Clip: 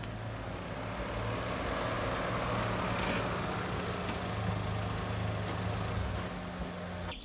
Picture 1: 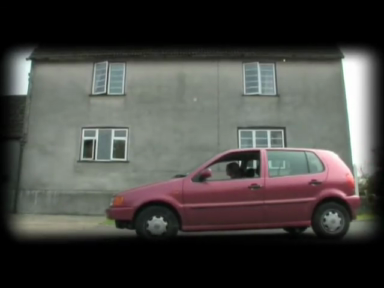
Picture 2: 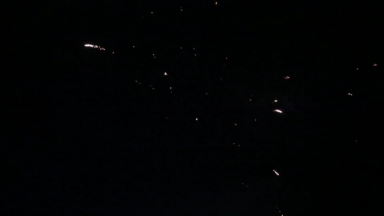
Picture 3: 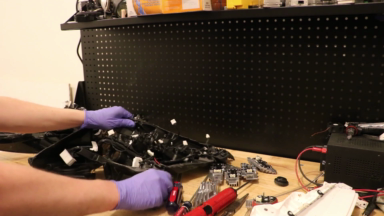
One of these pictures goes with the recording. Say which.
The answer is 1